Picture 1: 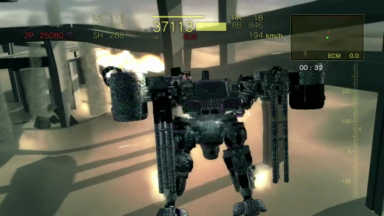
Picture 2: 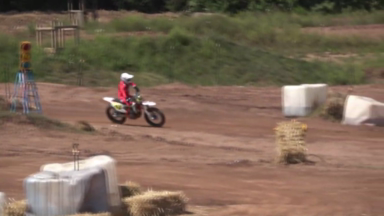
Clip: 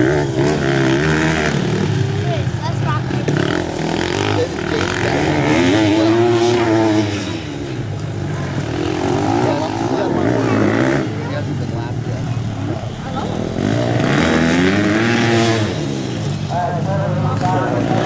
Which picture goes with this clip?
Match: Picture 2